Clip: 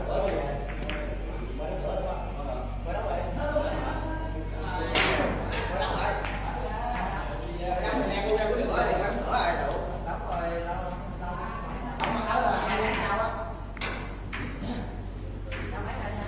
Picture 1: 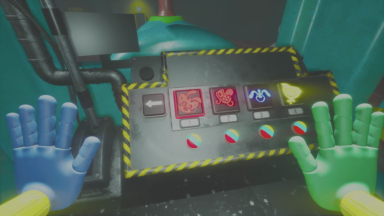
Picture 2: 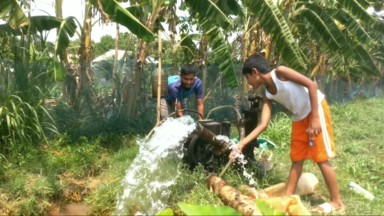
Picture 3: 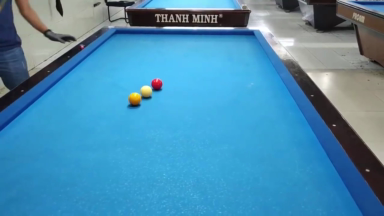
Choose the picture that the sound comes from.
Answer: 3